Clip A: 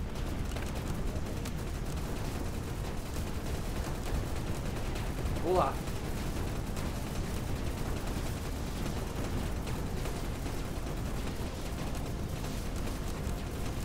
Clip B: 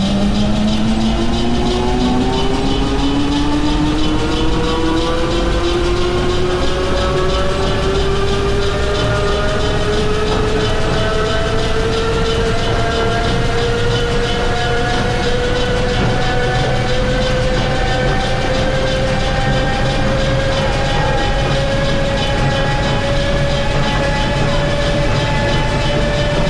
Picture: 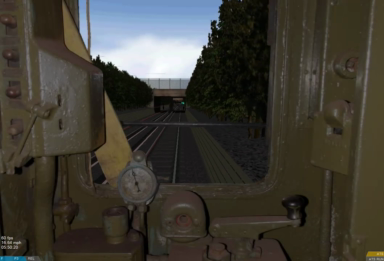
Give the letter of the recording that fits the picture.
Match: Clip B